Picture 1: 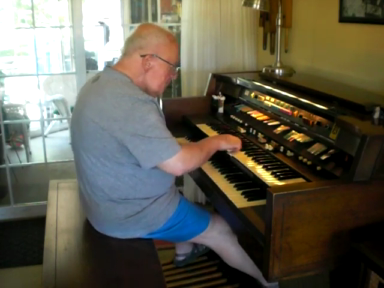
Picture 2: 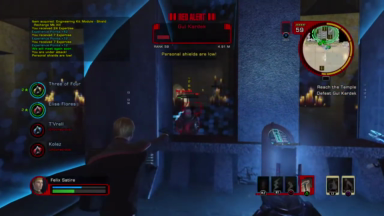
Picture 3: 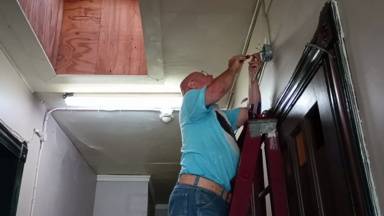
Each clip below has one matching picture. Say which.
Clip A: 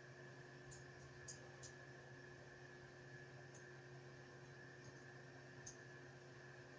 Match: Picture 3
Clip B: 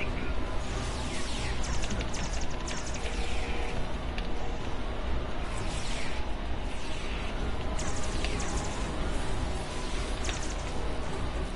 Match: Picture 2